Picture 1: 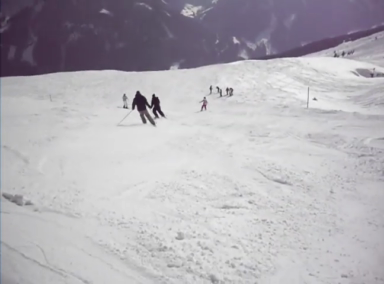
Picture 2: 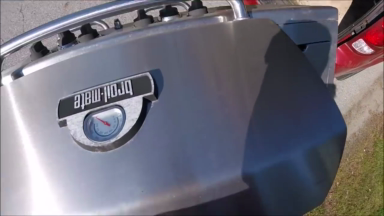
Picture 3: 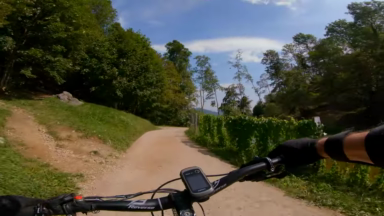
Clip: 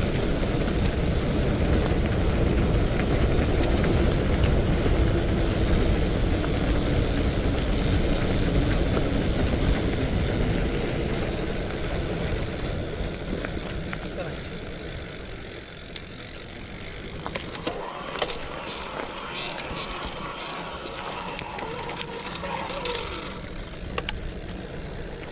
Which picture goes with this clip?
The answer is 3